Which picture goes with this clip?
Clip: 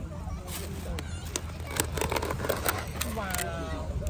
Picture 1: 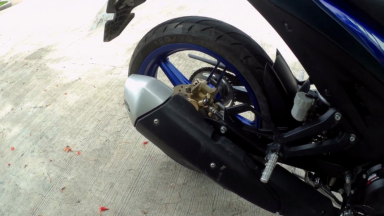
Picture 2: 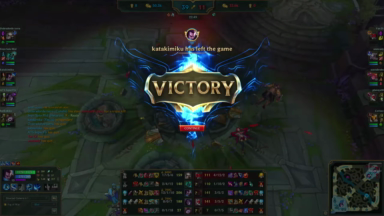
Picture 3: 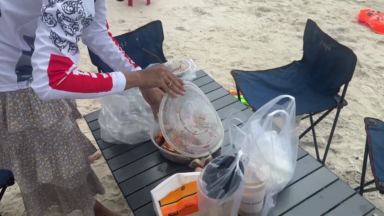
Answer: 3